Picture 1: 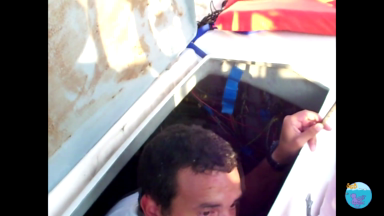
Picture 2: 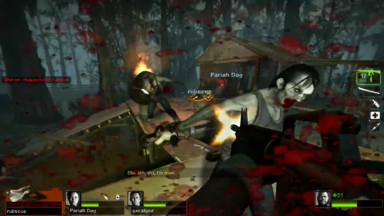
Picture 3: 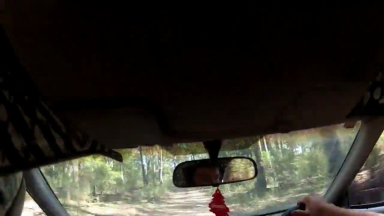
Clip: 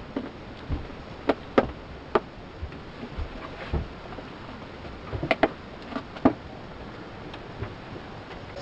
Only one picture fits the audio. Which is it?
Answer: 1